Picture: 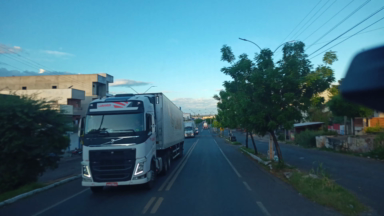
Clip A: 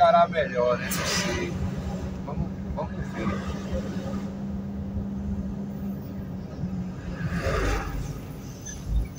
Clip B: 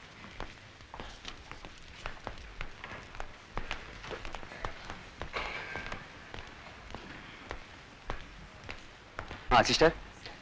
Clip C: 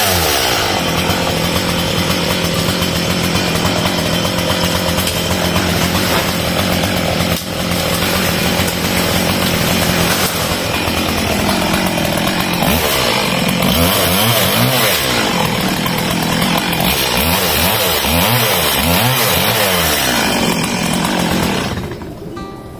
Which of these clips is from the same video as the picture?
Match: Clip A